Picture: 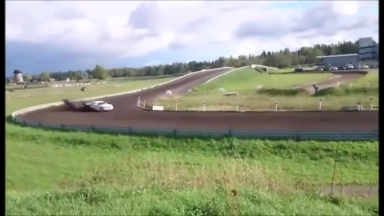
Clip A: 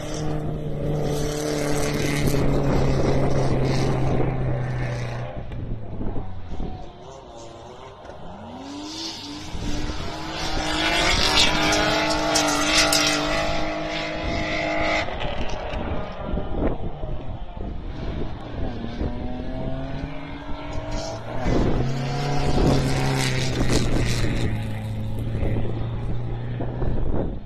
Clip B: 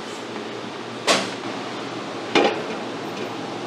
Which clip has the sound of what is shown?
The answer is A